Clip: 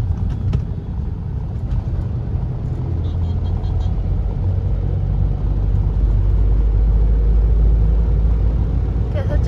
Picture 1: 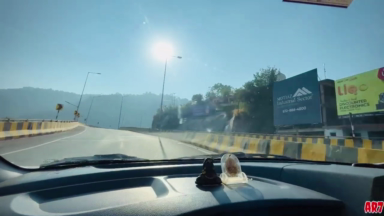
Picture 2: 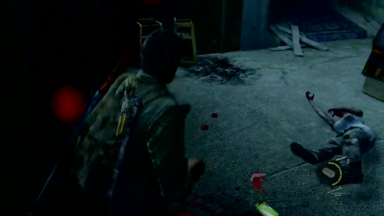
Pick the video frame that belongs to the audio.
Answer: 1